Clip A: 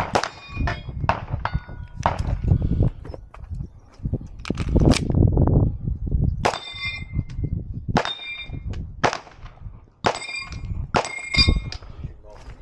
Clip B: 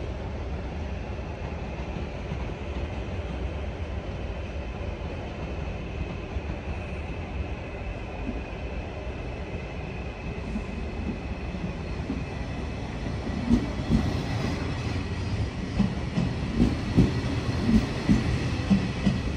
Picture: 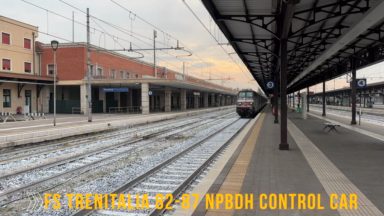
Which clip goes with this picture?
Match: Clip B